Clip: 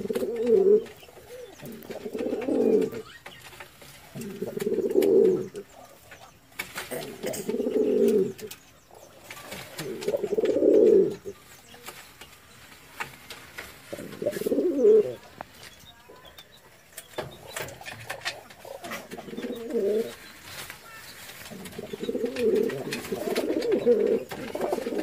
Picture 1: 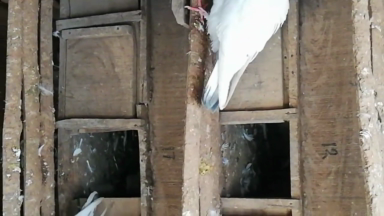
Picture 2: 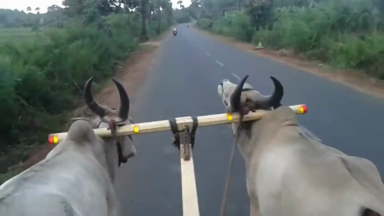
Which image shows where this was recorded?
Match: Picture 1